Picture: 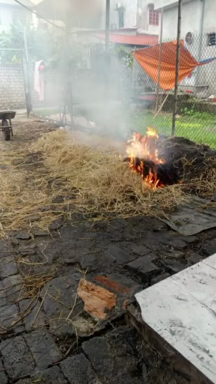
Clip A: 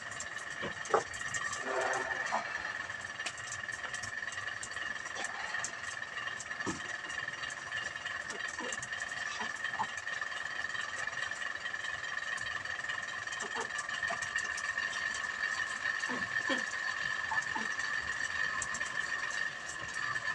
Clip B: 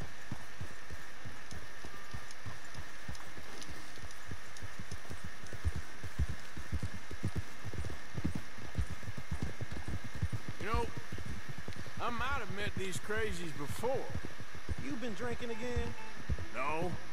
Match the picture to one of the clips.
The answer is A